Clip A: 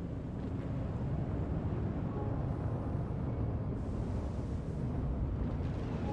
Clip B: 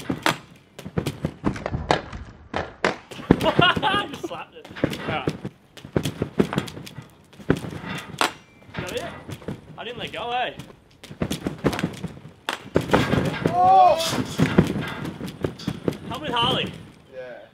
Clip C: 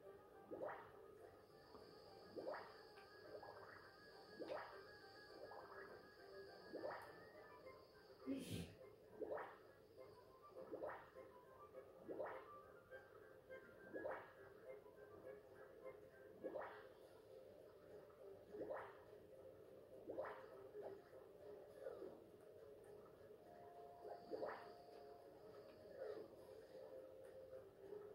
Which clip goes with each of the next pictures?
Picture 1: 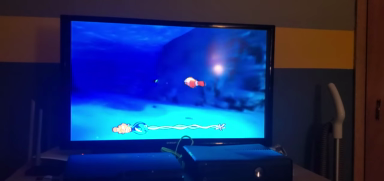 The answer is C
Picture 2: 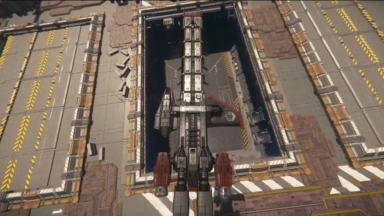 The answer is A